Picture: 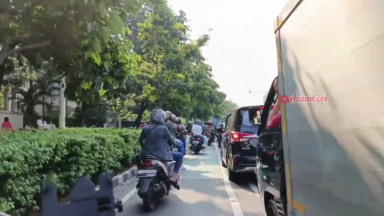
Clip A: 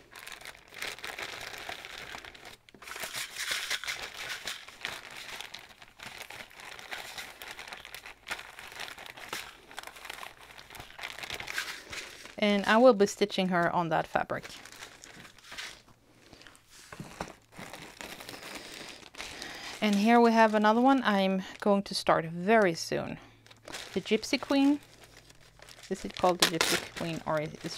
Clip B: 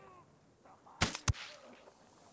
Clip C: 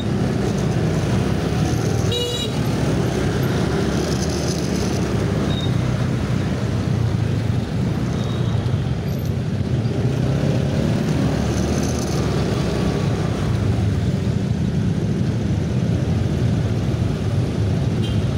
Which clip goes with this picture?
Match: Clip C